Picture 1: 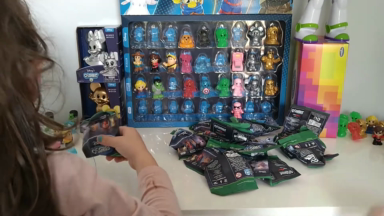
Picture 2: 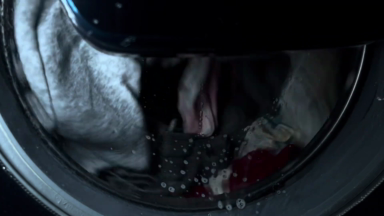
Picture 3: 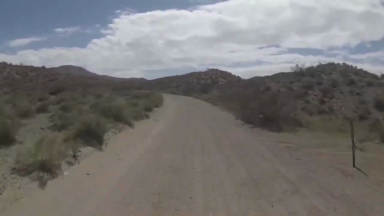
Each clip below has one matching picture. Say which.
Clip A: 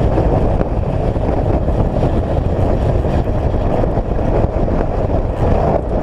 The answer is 3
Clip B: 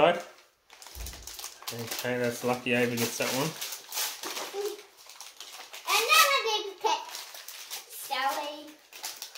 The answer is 1